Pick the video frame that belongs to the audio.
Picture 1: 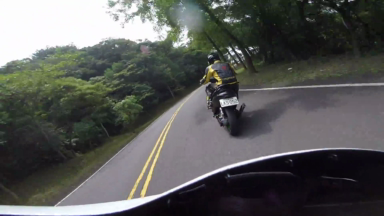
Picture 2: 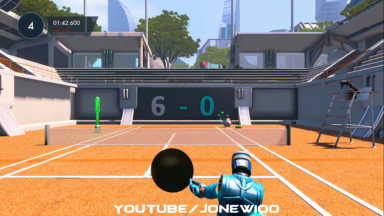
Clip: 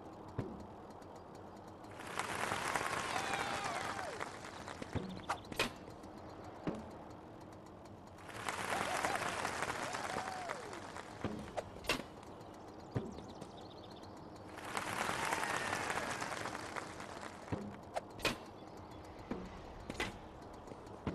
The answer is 2